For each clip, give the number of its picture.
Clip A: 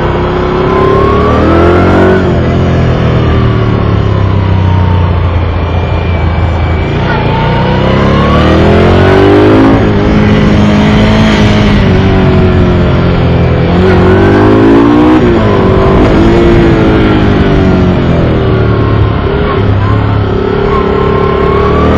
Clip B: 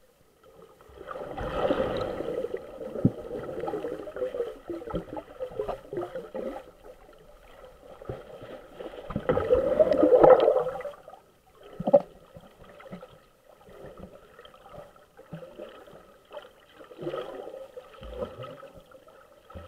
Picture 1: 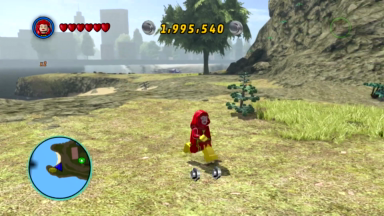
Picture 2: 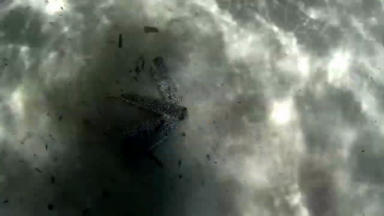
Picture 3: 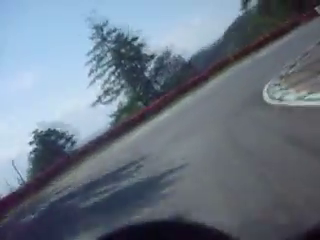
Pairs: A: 3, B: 2